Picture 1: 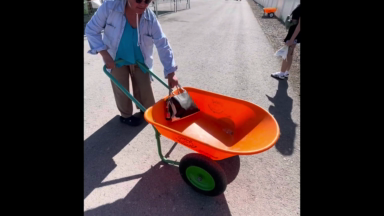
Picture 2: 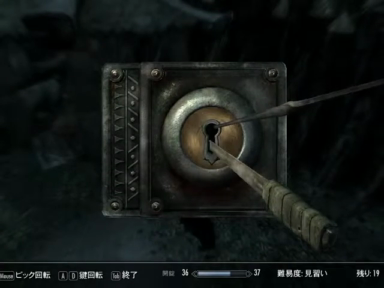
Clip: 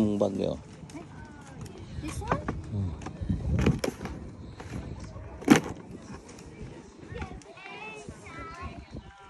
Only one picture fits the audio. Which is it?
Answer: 1